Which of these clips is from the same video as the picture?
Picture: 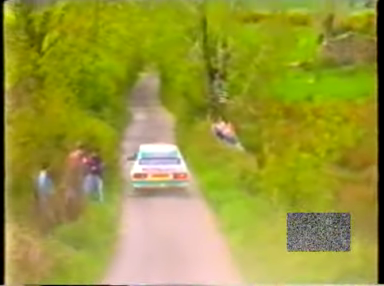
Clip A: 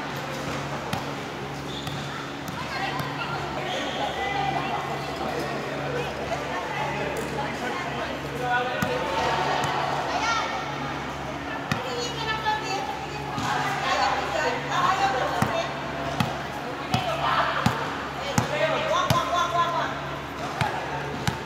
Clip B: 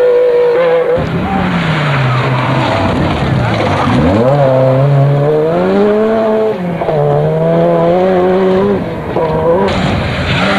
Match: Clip B